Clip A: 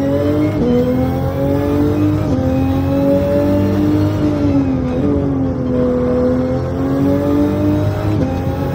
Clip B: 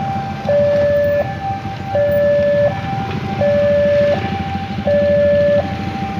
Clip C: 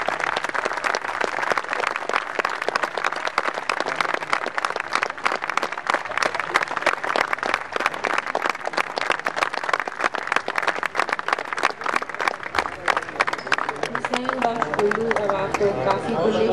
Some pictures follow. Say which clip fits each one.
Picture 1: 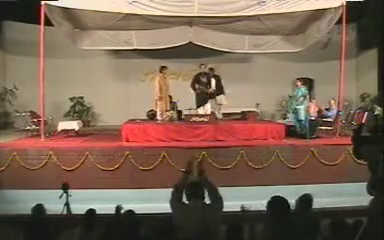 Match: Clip C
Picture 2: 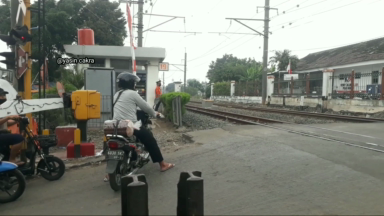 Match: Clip B